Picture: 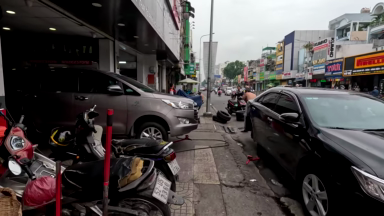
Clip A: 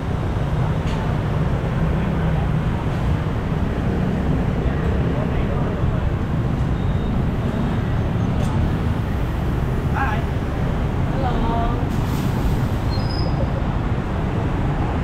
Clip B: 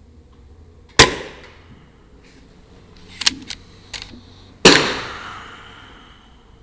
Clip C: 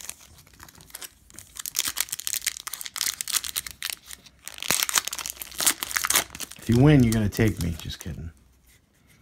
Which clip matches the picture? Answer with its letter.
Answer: A